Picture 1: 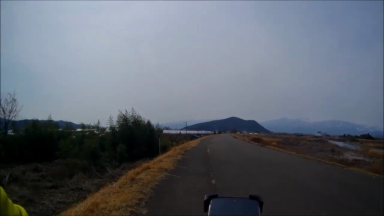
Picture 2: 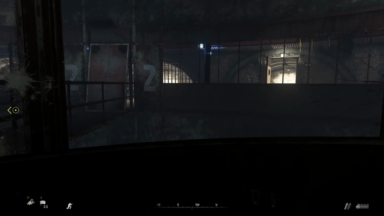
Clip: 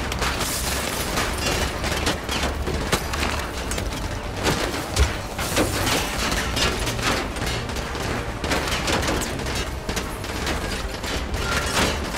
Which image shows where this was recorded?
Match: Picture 2